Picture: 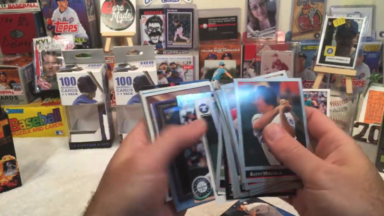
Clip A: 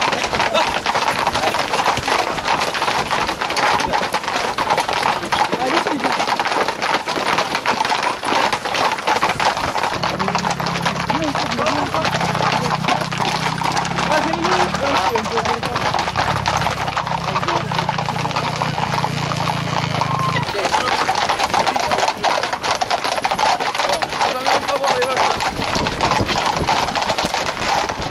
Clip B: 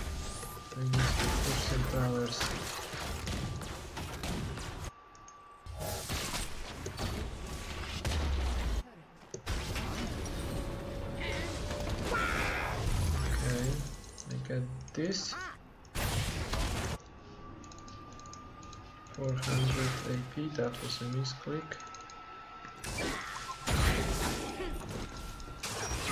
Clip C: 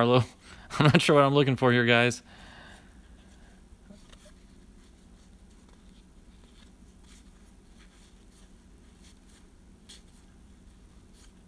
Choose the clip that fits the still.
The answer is C